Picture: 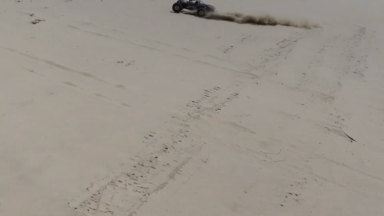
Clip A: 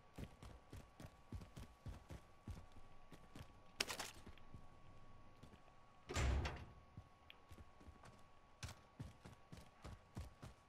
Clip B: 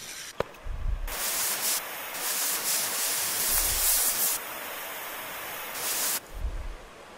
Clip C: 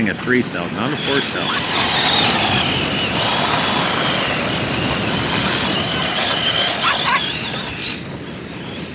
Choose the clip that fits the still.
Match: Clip C